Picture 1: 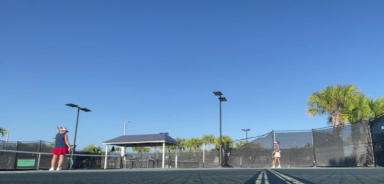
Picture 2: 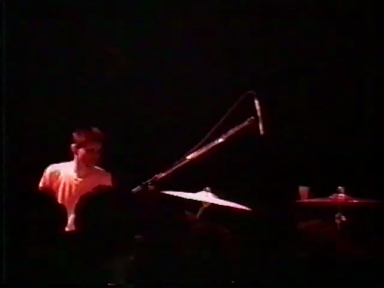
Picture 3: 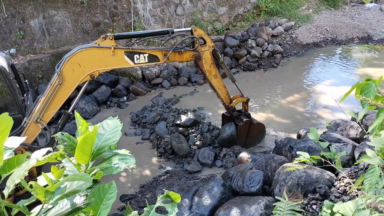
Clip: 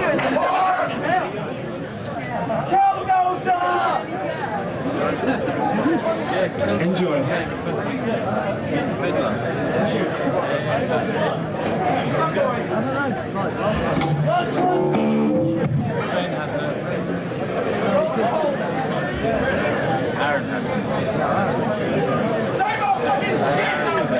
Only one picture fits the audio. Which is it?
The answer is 2